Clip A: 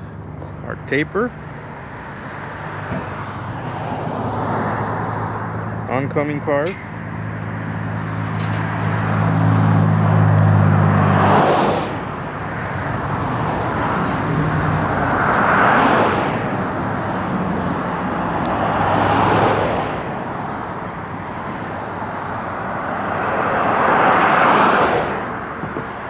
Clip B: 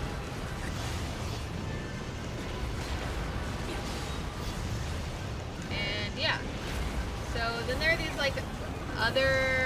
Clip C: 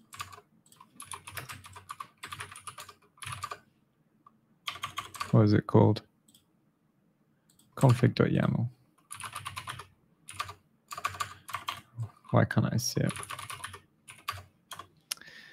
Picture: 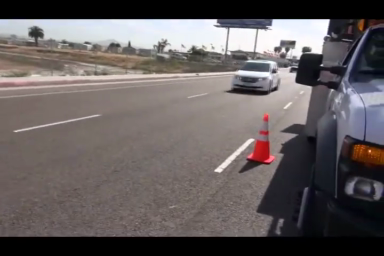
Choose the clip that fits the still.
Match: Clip A